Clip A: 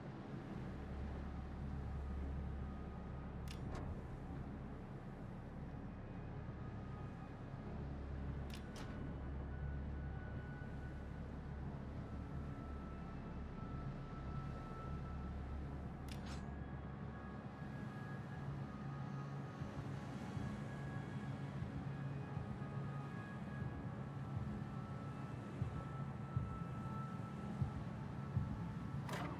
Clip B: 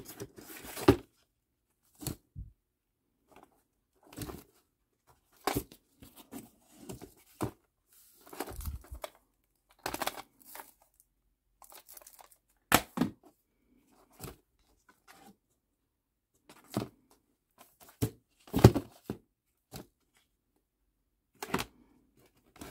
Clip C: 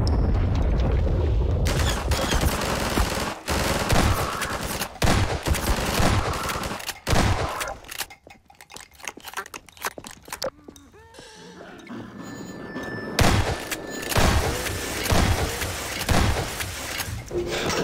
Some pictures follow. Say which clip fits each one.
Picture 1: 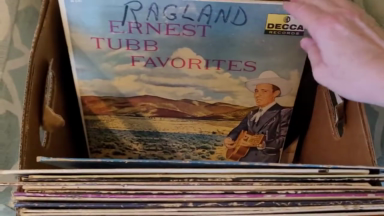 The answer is B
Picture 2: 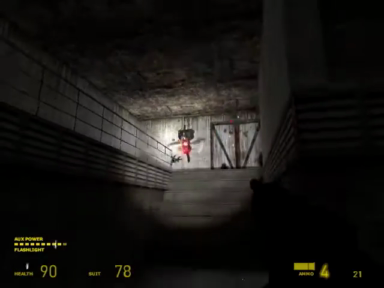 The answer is C